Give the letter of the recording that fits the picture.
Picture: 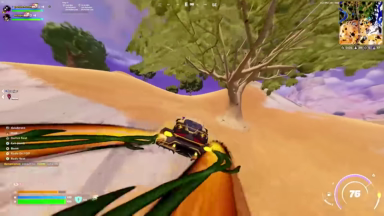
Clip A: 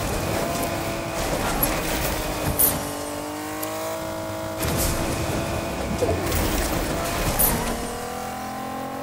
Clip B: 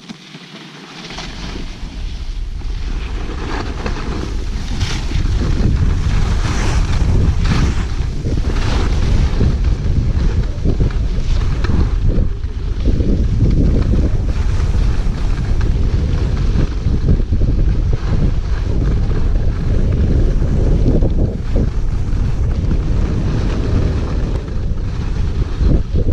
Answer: A